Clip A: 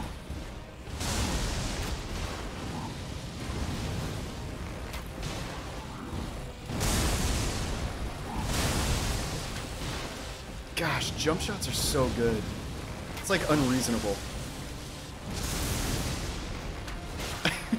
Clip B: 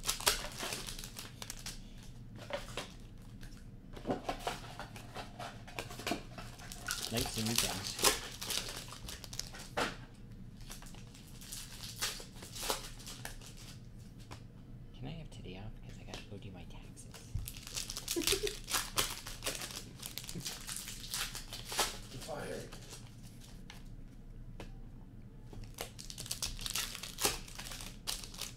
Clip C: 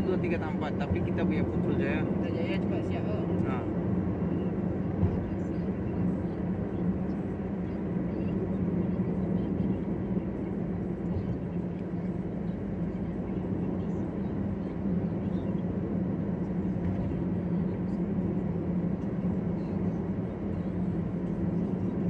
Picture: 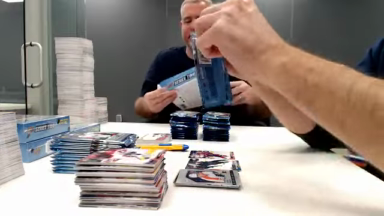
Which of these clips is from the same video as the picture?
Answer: B